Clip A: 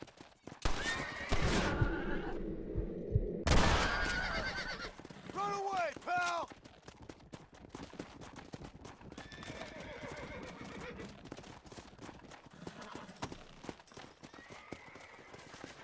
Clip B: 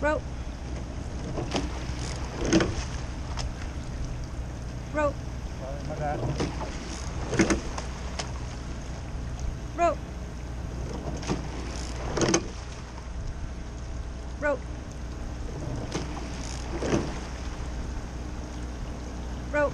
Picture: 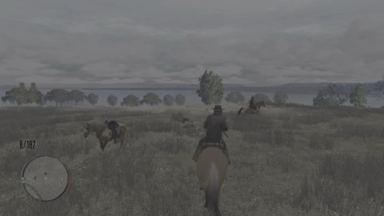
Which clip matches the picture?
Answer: A